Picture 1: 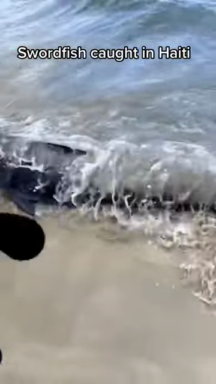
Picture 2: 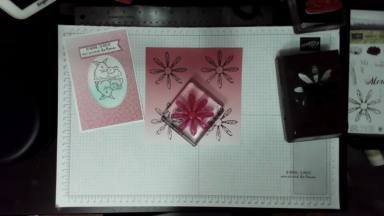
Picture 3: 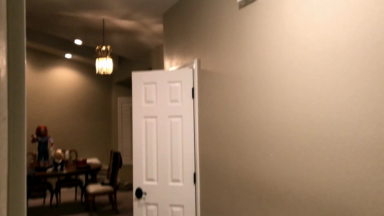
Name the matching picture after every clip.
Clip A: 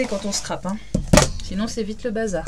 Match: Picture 2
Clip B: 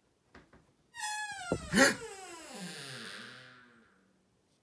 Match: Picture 3